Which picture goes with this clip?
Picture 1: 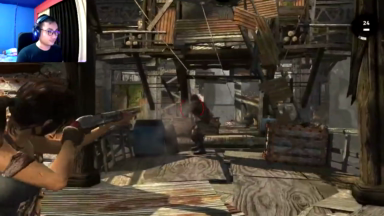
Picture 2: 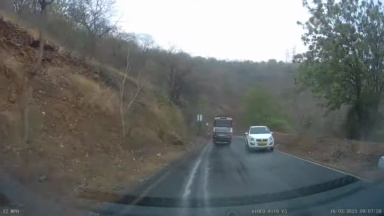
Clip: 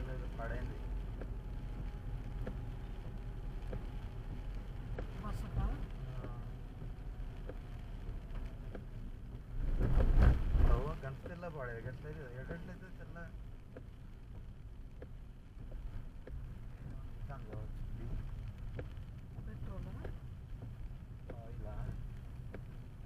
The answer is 2